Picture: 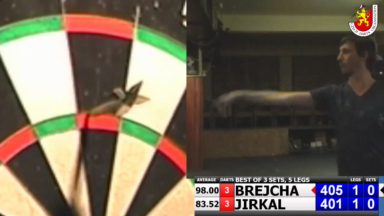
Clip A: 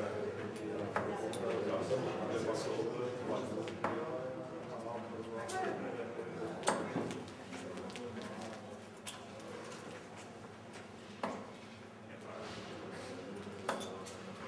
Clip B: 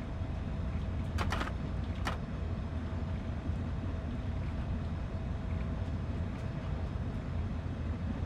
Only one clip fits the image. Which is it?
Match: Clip A